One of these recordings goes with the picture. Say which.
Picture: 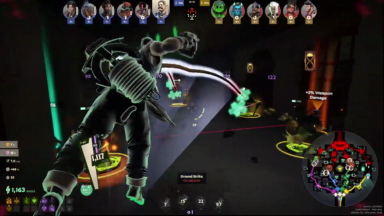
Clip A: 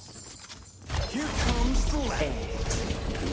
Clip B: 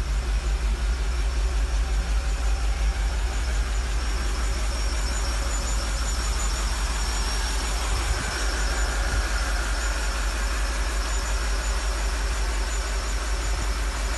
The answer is A